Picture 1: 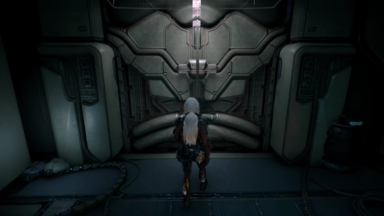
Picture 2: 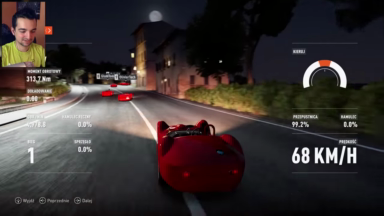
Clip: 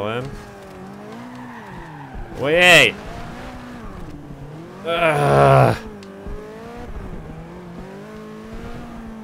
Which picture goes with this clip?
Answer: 2